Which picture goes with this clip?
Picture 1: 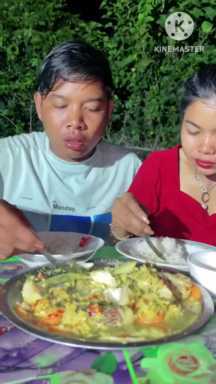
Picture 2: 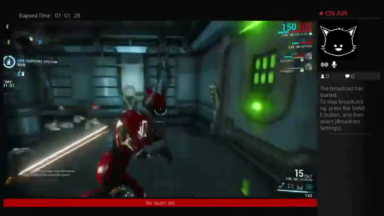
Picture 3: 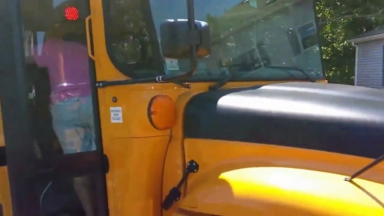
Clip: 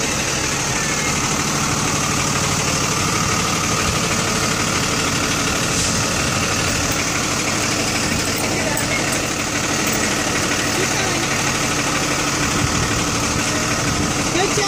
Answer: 3